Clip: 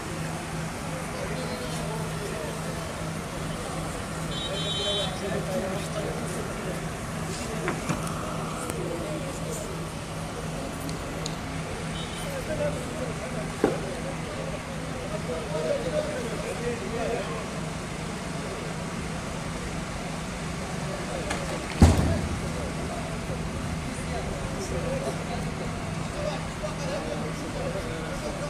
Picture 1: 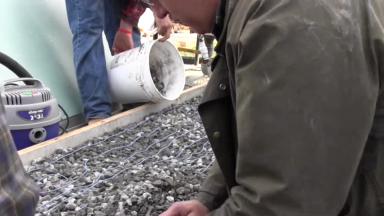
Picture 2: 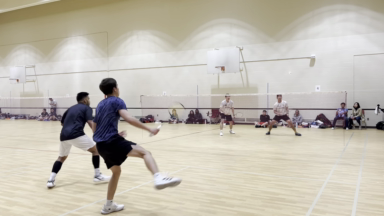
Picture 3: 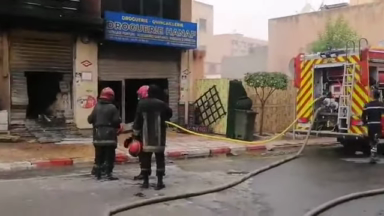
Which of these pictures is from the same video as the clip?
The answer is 3